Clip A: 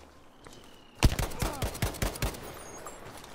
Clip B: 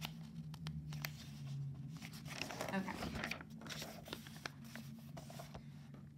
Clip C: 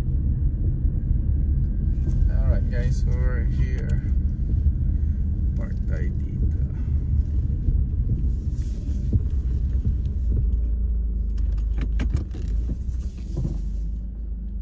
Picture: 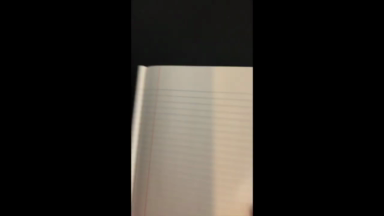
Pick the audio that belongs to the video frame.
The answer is B